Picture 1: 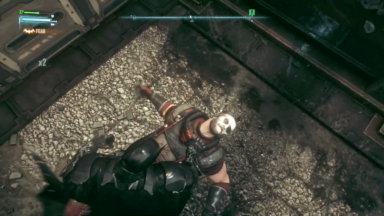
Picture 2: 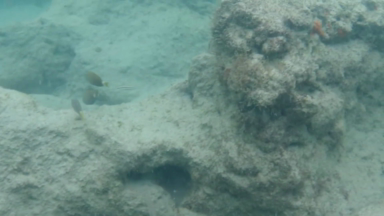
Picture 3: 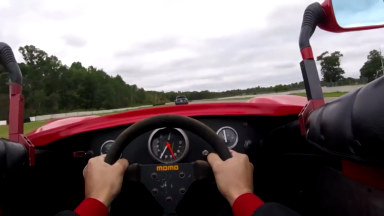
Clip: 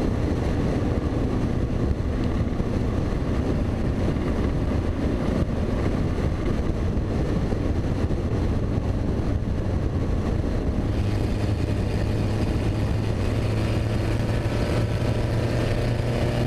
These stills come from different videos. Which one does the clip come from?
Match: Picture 3